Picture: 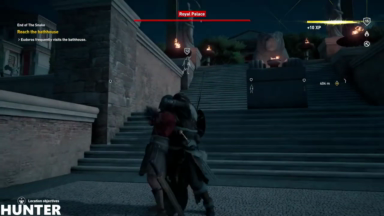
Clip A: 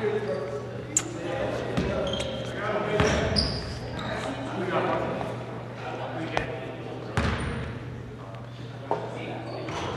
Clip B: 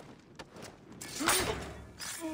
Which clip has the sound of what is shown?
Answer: B